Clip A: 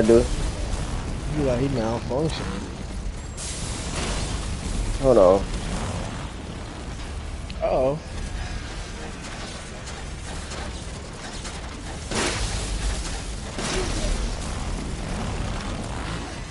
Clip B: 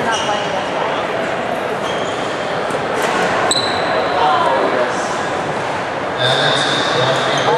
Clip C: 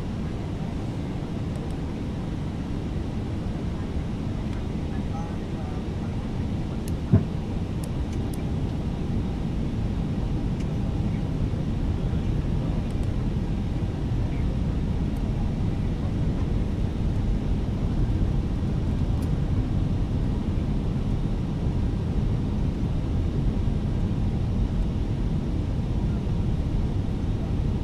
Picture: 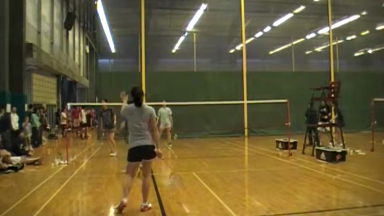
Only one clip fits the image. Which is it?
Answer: B